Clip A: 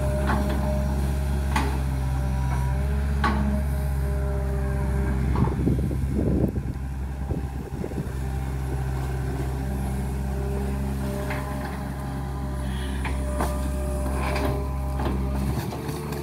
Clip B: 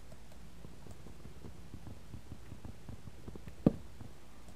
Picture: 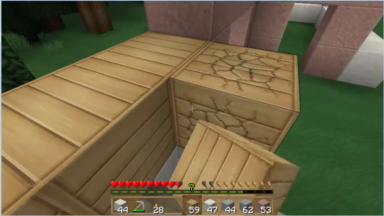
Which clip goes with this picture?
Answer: B